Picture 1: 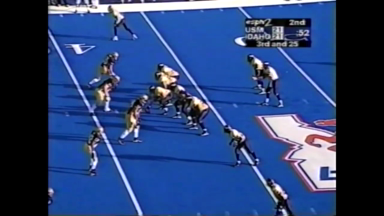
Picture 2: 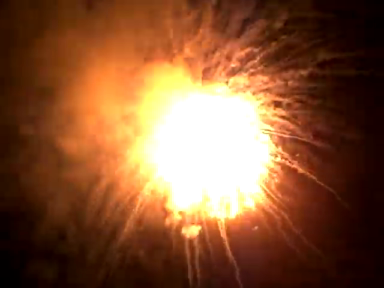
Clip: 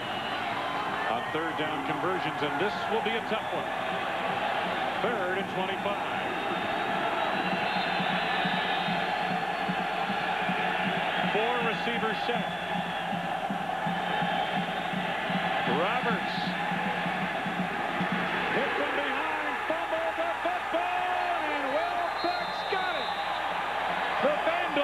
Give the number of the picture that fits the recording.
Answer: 1